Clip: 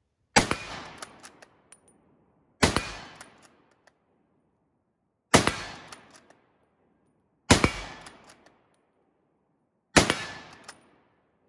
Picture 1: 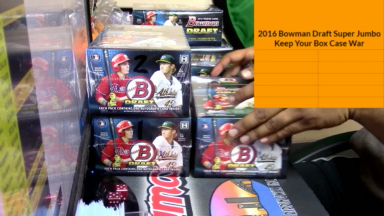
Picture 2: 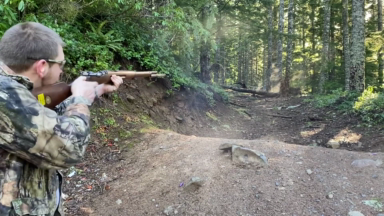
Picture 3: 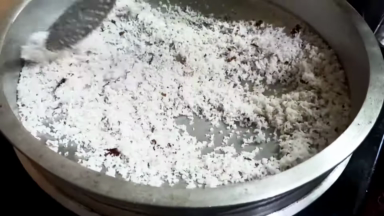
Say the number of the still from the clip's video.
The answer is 2